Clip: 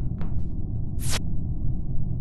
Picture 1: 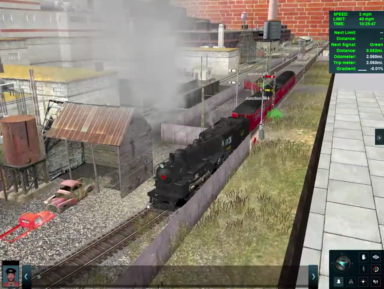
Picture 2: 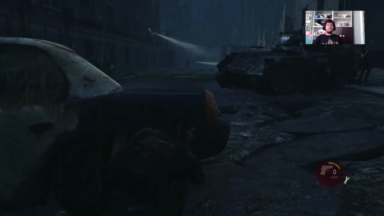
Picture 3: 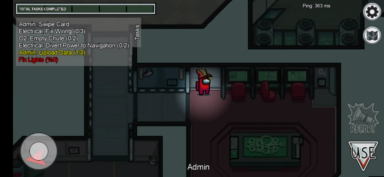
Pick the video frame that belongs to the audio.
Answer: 3